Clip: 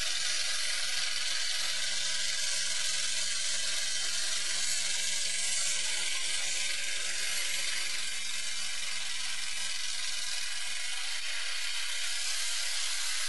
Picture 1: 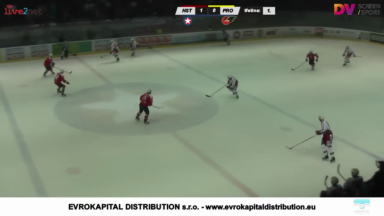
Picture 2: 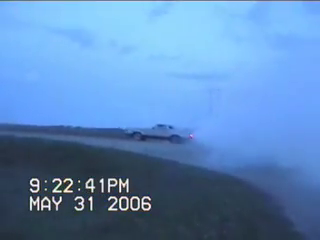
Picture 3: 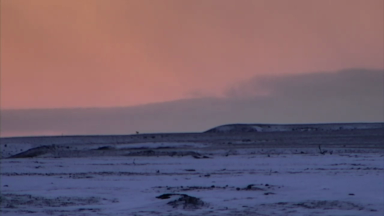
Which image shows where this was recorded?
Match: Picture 2